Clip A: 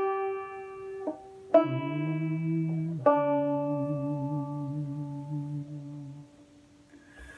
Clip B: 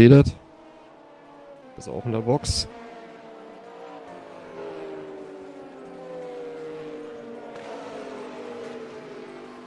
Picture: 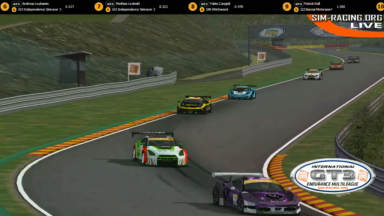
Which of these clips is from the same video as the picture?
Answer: B